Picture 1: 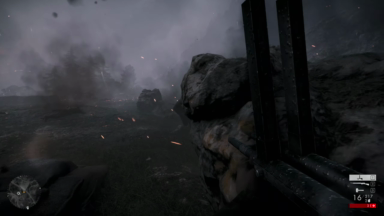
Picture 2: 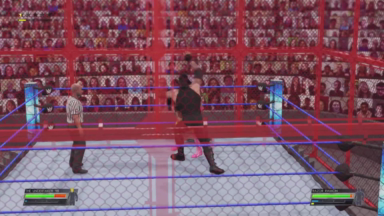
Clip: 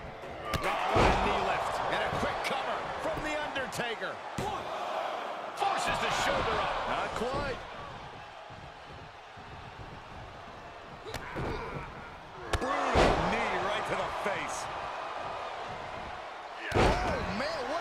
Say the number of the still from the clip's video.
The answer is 2